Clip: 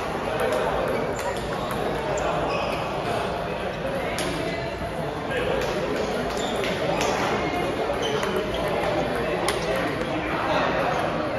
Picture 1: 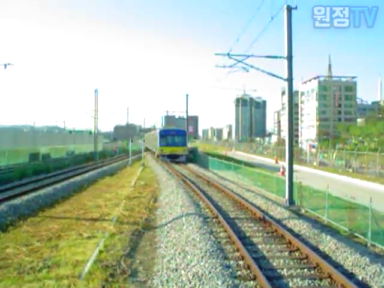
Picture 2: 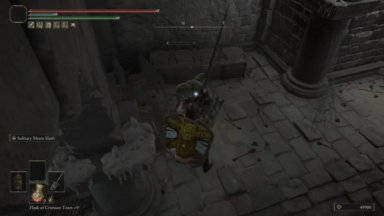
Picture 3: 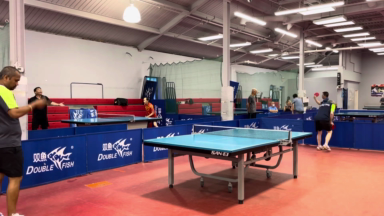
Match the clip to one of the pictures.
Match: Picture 3